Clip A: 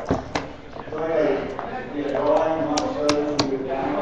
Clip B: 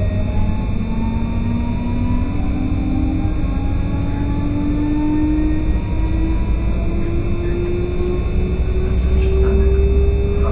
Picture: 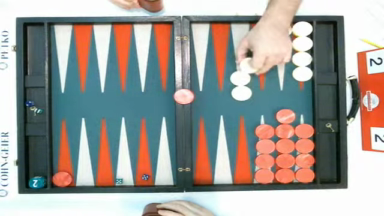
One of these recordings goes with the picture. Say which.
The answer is A